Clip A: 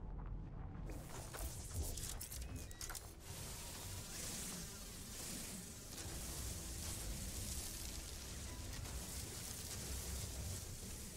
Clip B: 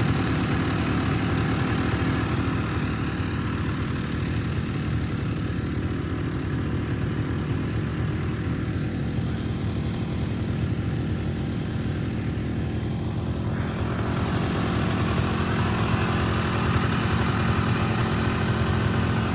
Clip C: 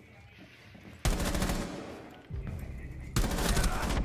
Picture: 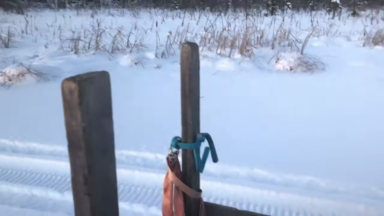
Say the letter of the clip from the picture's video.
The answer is B